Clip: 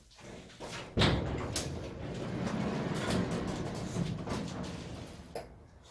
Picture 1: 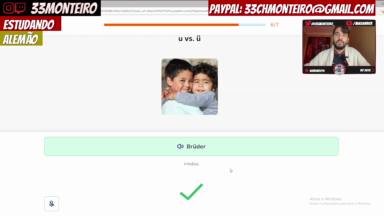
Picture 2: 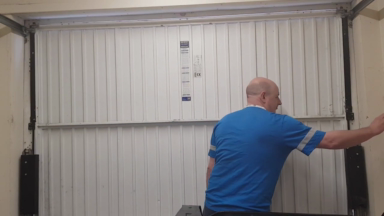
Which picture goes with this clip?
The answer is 2